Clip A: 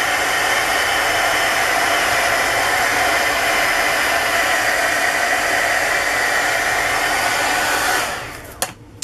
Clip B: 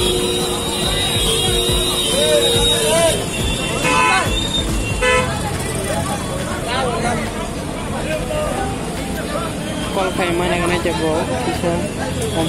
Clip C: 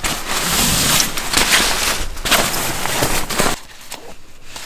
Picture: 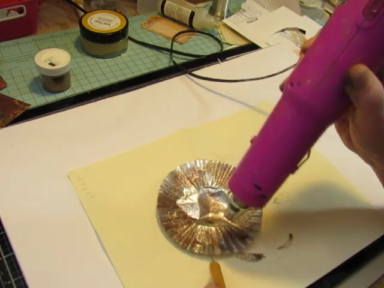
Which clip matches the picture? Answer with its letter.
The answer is A